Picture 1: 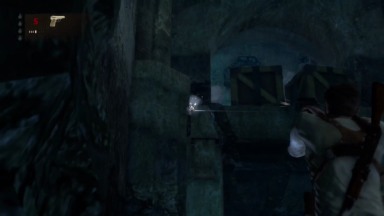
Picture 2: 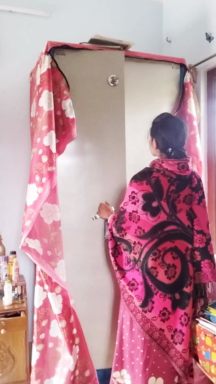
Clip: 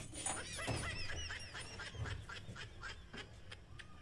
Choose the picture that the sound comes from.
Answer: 2